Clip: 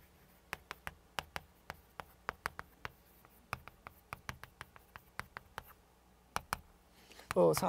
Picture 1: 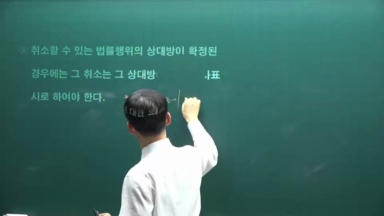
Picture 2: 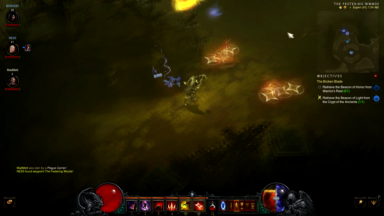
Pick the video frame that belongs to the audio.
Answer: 1